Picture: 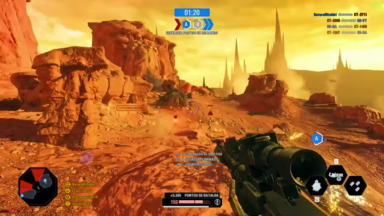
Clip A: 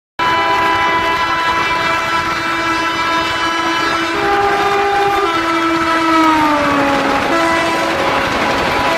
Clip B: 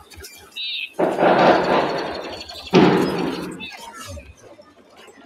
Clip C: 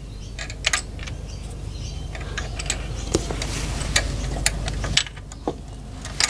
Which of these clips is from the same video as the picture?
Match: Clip B